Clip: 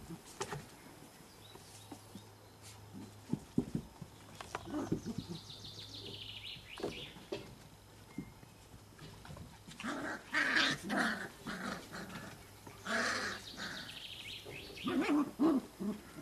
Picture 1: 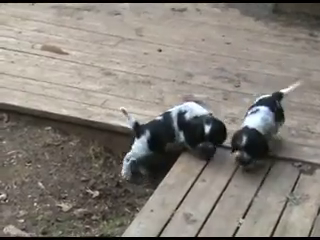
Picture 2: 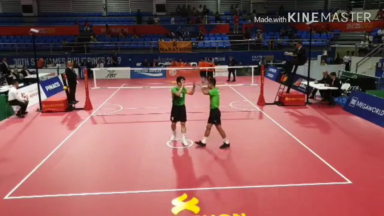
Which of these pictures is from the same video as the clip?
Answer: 1